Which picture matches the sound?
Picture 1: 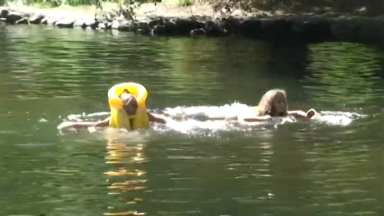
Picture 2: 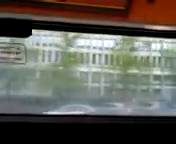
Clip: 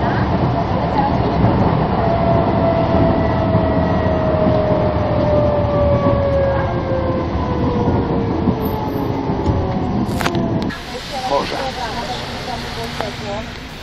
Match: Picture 2